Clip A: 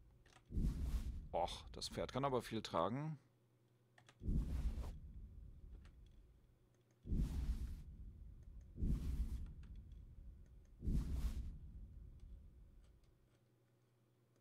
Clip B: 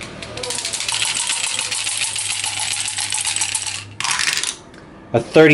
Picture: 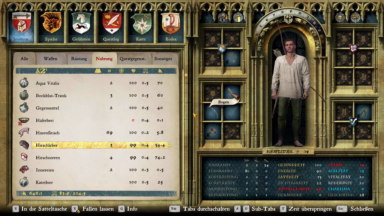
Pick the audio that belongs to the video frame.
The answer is A